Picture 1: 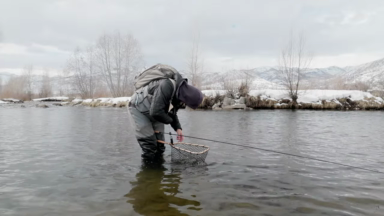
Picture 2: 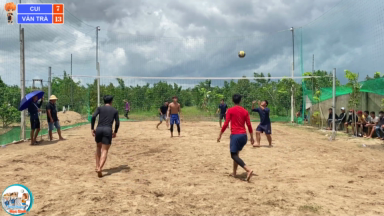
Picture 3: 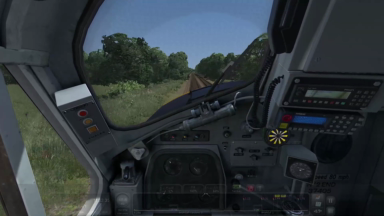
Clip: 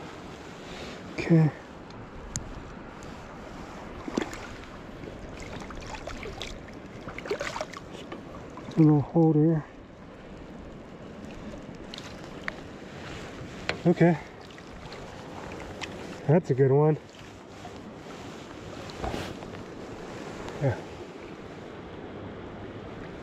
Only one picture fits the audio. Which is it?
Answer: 1